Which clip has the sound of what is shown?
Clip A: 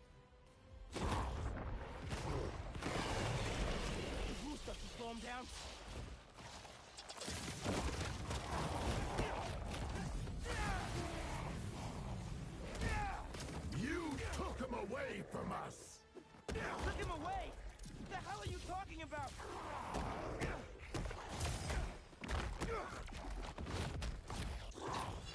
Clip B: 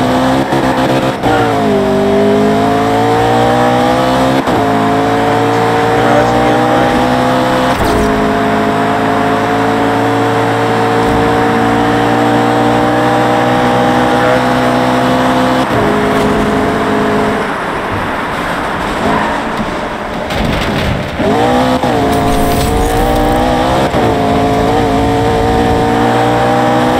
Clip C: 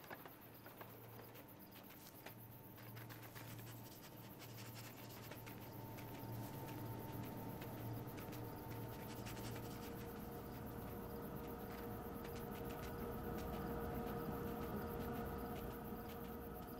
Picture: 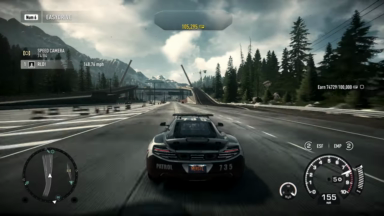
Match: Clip B